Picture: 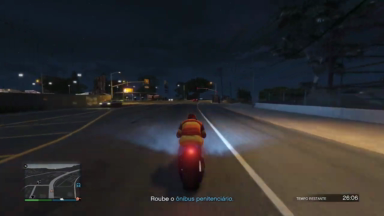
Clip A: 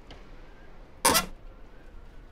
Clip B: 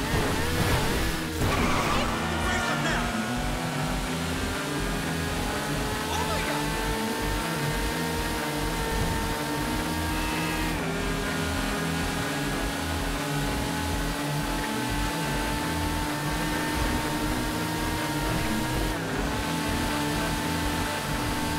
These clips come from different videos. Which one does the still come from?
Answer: B